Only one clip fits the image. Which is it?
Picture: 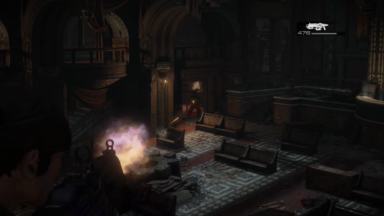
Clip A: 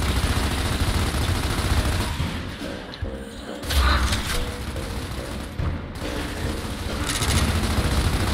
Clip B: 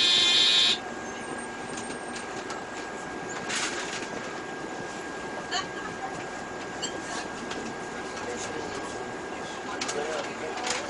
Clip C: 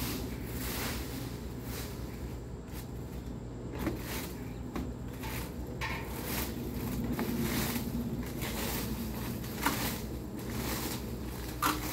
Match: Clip A